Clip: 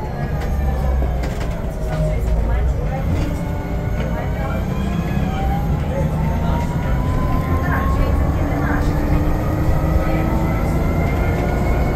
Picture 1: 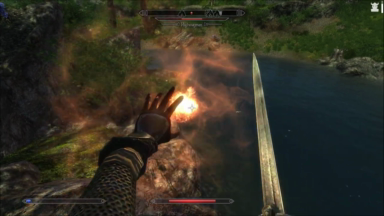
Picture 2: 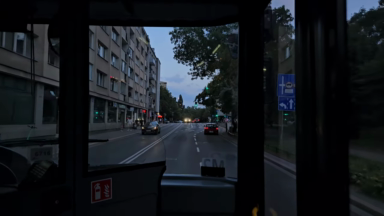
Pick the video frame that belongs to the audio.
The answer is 2